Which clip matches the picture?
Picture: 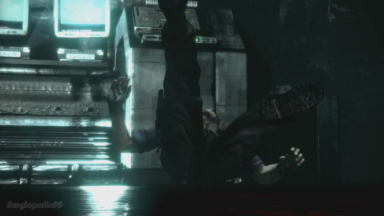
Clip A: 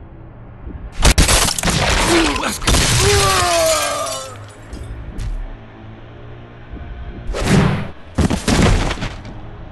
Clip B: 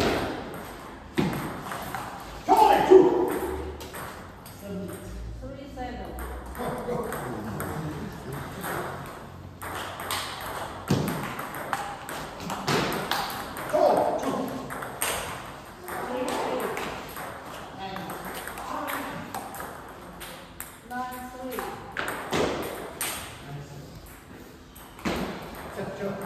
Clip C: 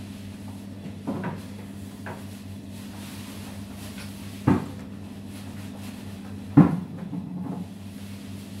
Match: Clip A